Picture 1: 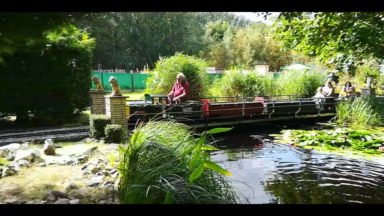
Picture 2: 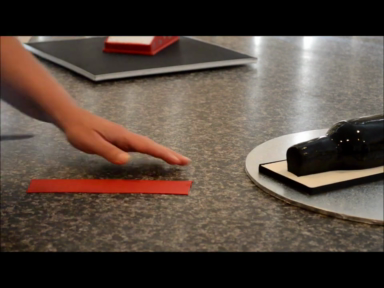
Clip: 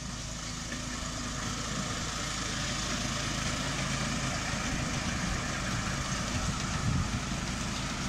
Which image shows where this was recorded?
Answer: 1